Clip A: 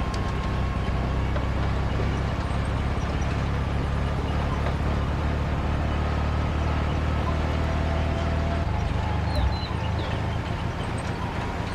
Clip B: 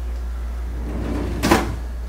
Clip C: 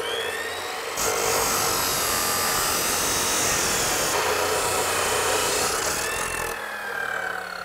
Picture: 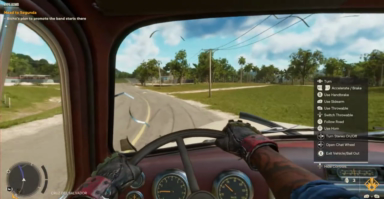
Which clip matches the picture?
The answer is A